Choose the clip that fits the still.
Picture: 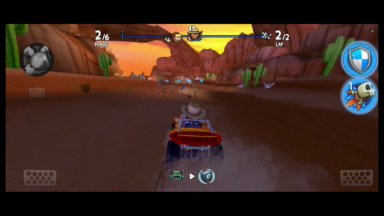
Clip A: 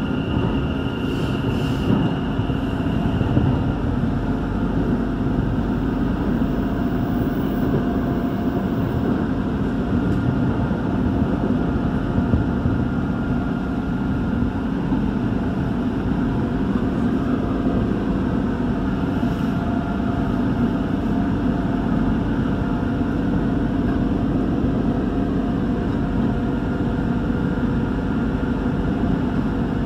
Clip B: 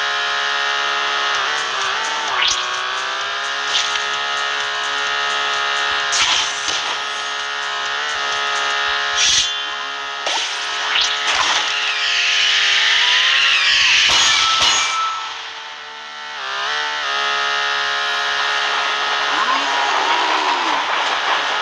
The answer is B